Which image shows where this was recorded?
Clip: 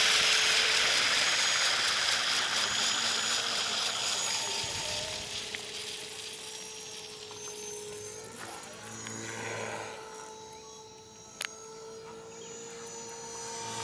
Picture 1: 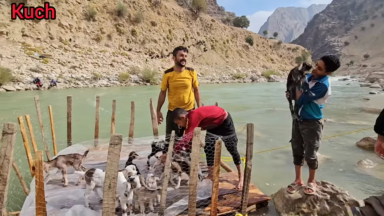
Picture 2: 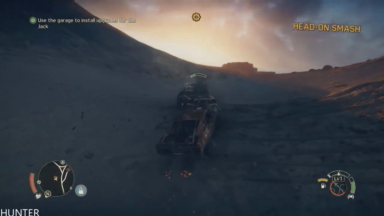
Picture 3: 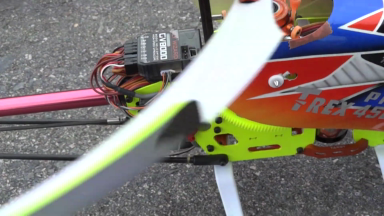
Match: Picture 3